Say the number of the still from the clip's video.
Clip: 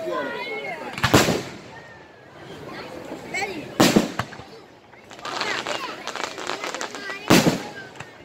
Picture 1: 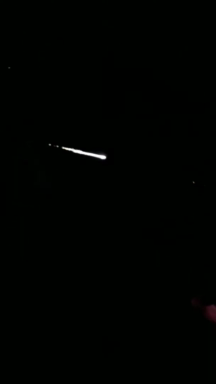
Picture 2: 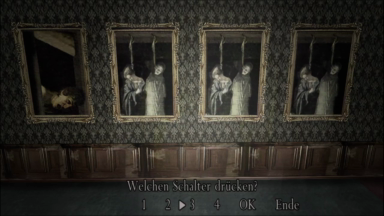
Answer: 1